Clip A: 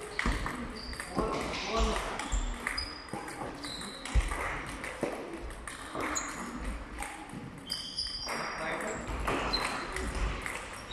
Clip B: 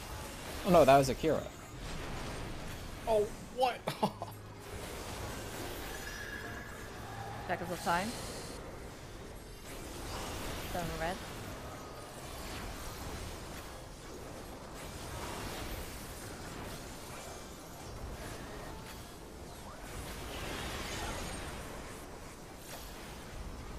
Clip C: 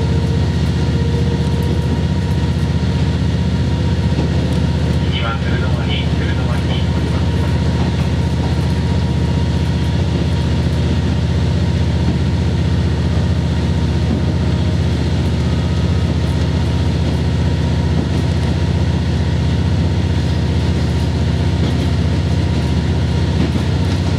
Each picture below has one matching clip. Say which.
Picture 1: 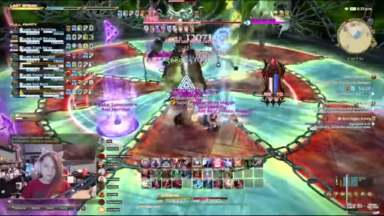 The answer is B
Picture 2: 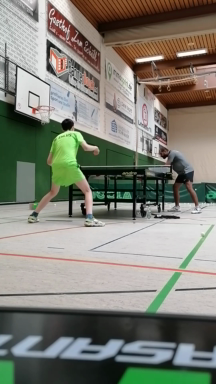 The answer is A